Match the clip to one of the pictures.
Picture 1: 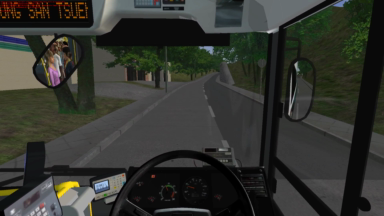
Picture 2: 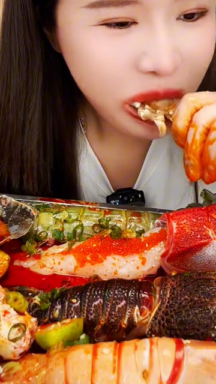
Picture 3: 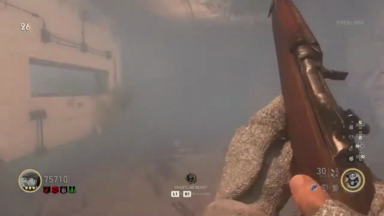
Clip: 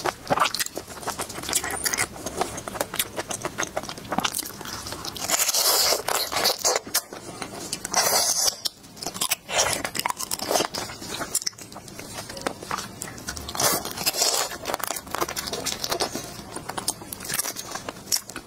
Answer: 2